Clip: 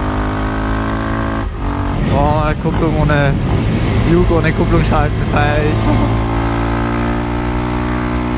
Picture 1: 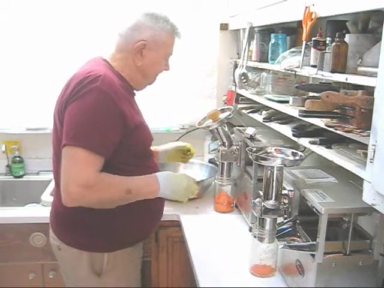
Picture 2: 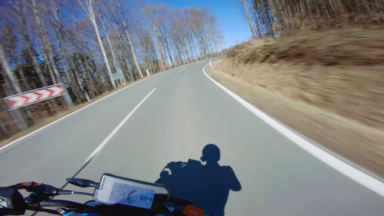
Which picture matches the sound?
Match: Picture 2